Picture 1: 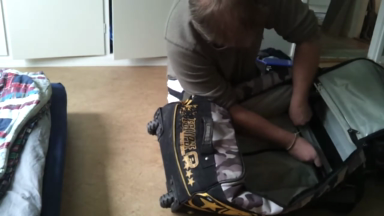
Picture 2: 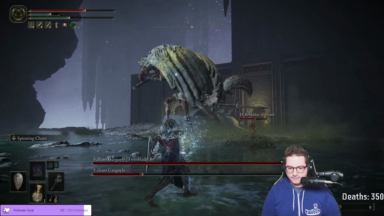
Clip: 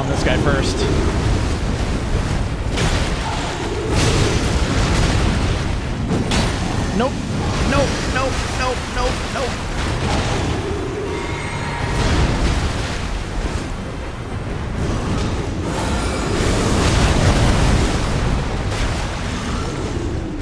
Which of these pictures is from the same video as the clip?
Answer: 2